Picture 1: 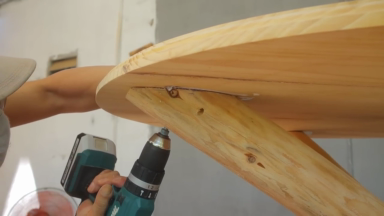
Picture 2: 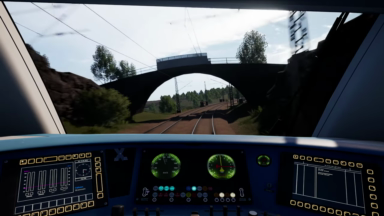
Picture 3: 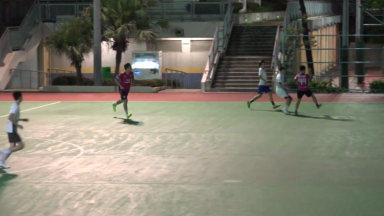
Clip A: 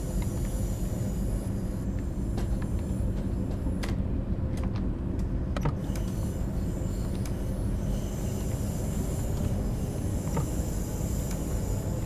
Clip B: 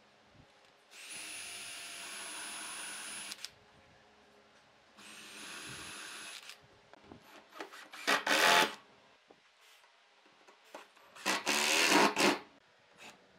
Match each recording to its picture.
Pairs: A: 2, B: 1